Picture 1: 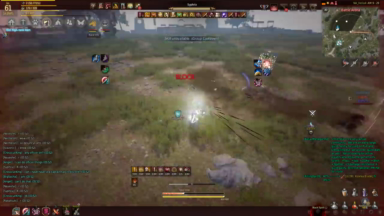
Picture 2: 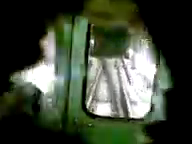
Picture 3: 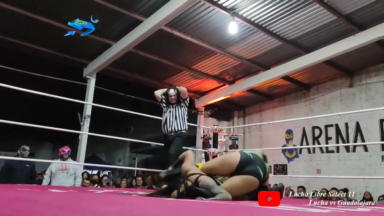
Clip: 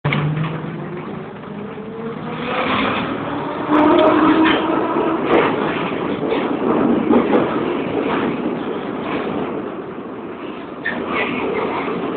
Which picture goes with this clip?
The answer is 2